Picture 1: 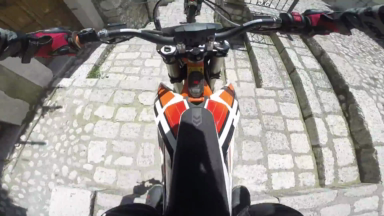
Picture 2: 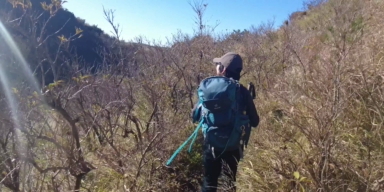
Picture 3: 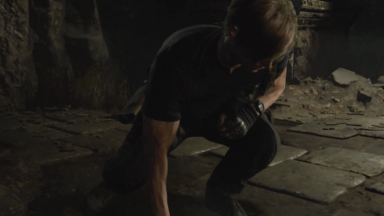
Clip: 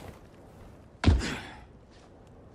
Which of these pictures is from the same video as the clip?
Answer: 3